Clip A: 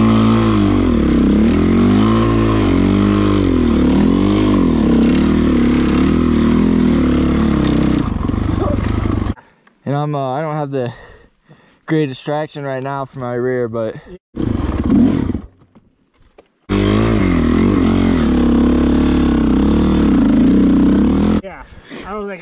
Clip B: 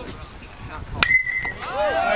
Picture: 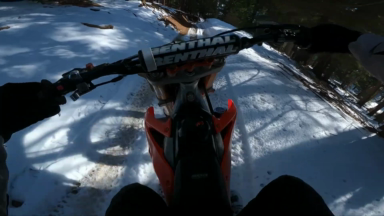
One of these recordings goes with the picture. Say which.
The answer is A